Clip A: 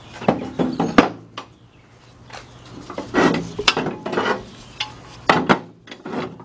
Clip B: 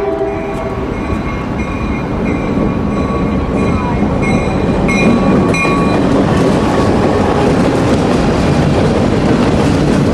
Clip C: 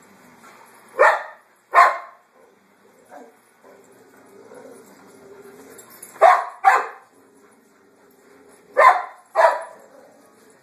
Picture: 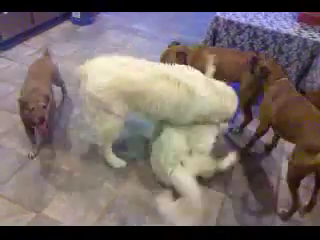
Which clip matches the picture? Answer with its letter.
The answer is C